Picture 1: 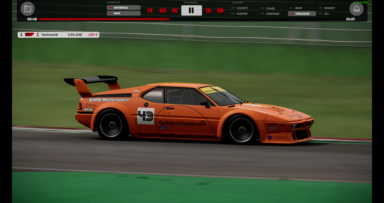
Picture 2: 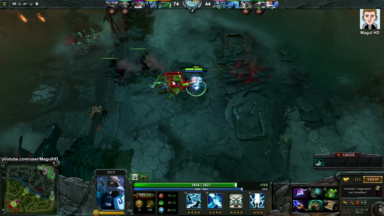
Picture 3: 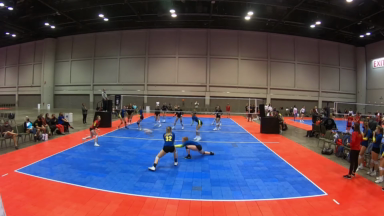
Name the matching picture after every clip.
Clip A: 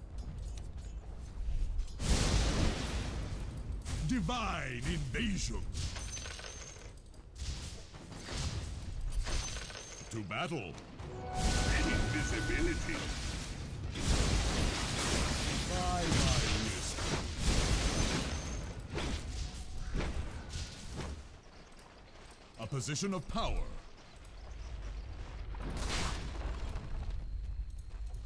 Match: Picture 2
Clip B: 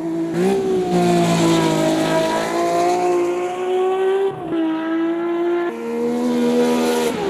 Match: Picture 1